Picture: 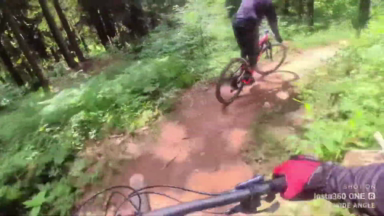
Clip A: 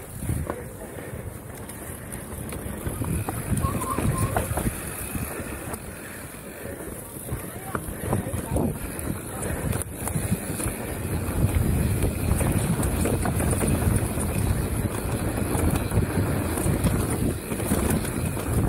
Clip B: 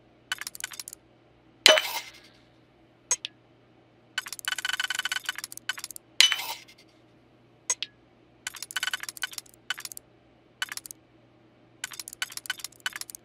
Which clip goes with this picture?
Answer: A